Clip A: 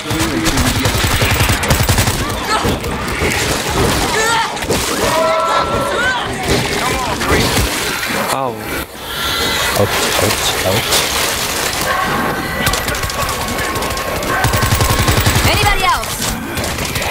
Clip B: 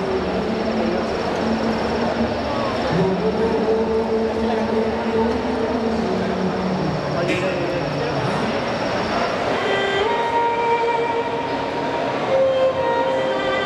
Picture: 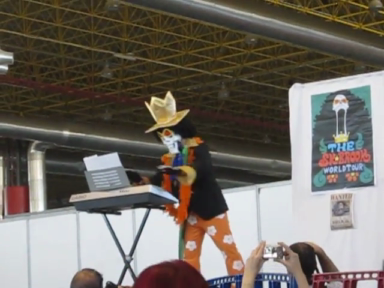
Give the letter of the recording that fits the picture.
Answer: B